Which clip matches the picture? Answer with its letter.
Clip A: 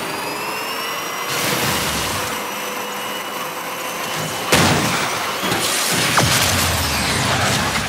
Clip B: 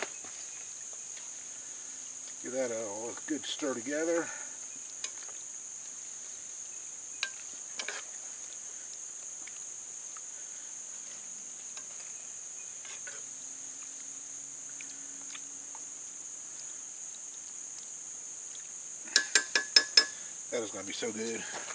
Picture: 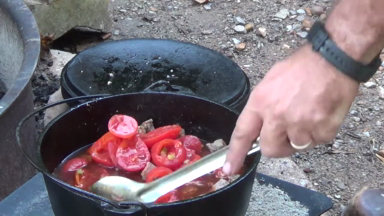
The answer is B